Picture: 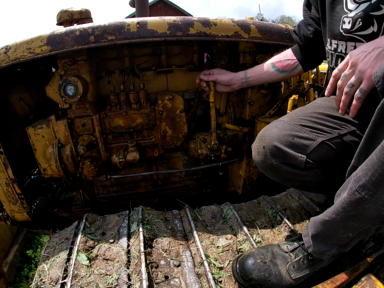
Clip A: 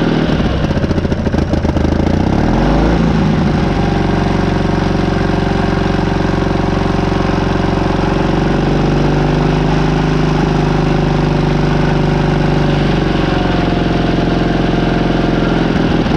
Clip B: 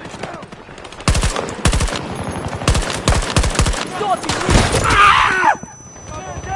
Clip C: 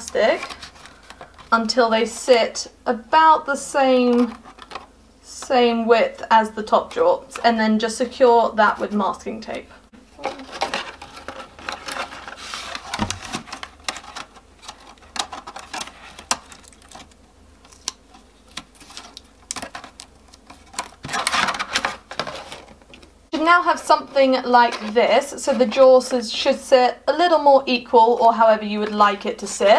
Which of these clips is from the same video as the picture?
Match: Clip A